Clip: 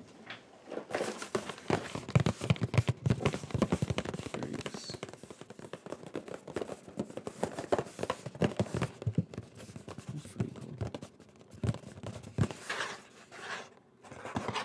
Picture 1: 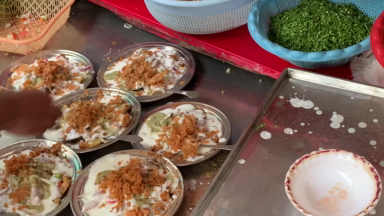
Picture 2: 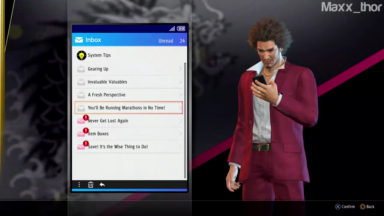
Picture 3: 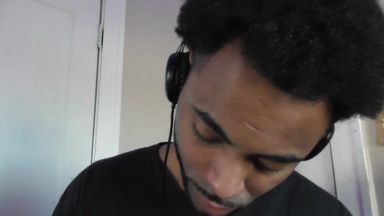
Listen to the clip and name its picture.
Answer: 3